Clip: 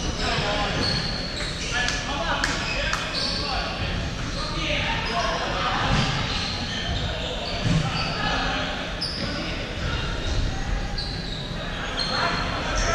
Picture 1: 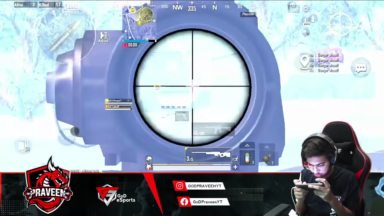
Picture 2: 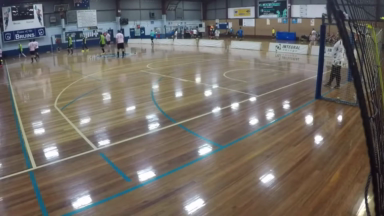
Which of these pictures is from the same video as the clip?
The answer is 2